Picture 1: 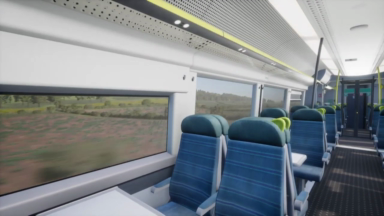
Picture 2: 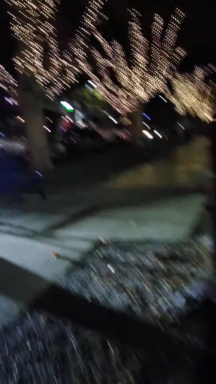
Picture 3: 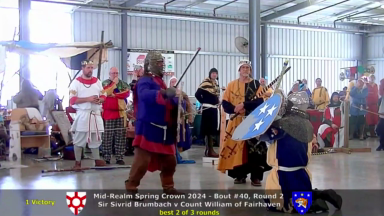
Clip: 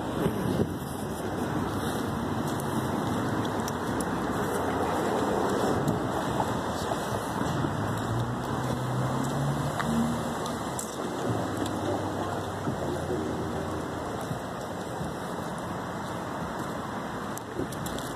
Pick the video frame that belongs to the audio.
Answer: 2